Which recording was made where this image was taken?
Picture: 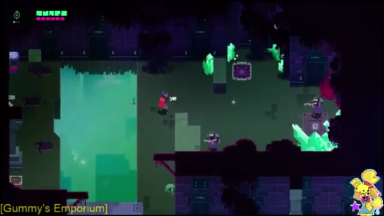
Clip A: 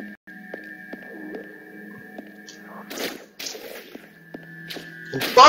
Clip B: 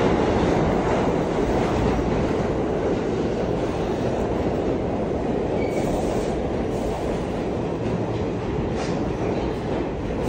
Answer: A